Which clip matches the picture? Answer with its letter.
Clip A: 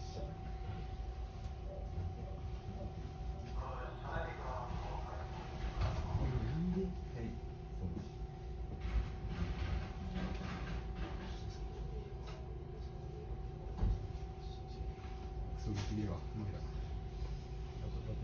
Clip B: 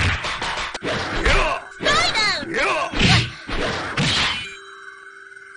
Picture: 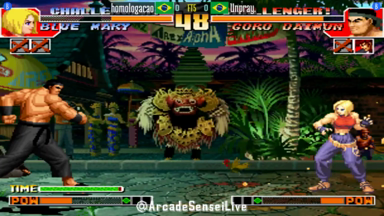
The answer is B